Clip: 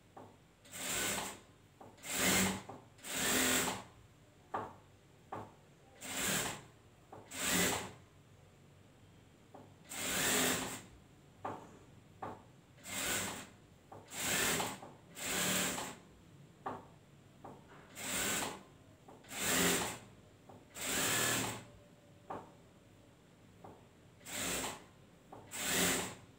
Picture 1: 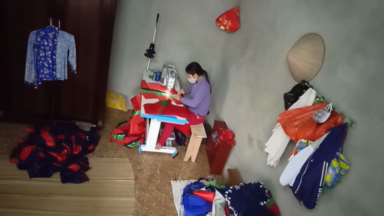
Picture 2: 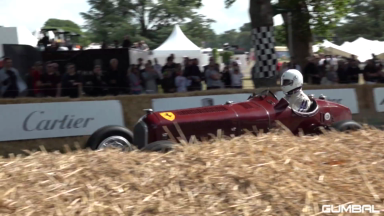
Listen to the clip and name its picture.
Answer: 1